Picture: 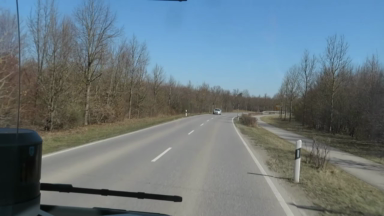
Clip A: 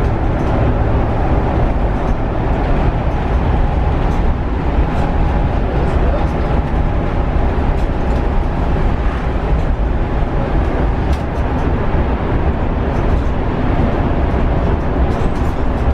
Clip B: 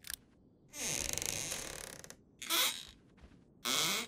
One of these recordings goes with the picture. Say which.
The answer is A